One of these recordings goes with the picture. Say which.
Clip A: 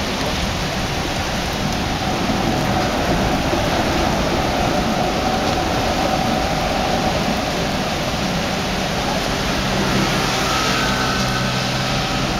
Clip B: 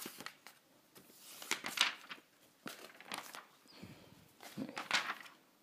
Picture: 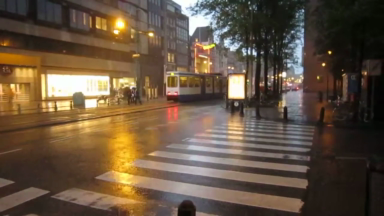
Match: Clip A